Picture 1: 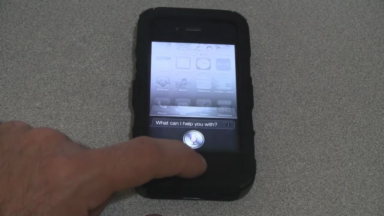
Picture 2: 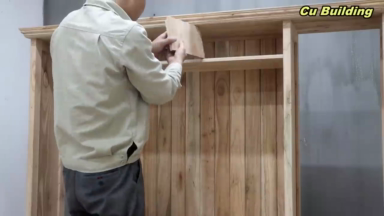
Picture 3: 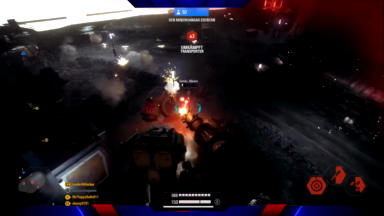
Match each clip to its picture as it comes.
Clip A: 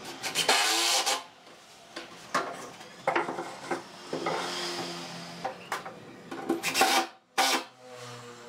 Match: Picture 2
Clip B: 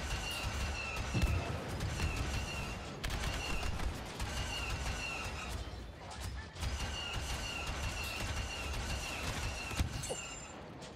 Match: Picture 3